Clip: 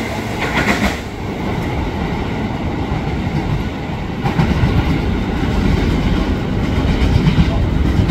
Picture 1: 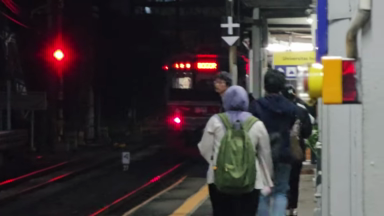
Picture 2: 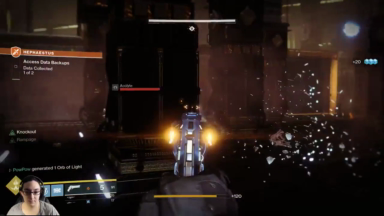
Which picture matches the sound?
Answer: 1